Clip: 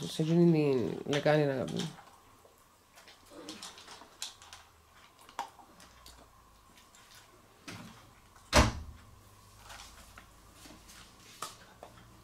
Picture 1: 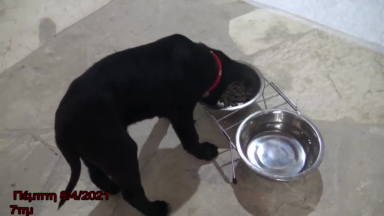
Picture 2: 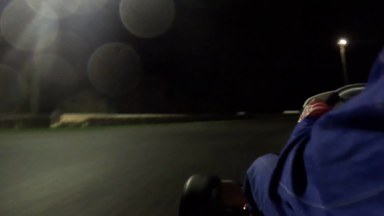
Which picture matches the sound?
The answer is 1